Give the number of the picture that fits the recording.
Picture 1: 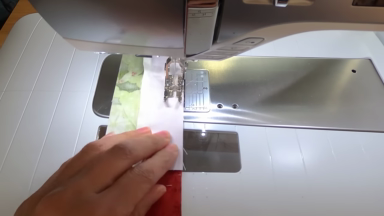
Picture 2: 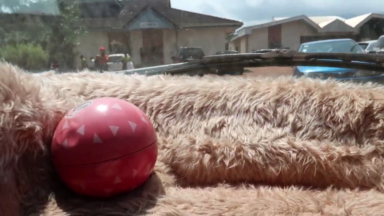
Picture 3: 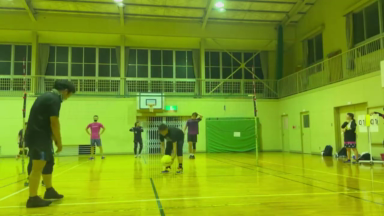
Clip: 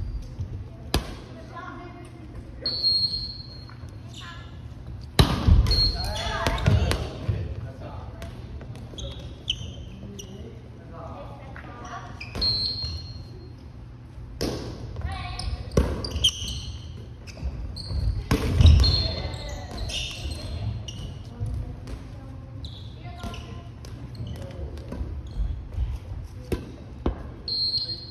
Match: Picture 3